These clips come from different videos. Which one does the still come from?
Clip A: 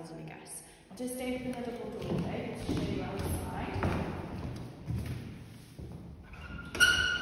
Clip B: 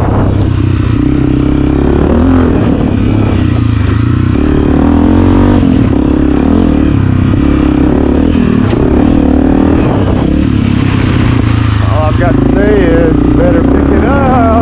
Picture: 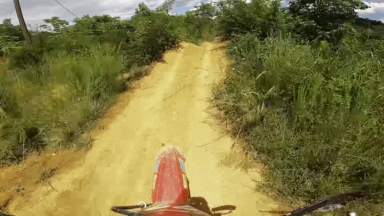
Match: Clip B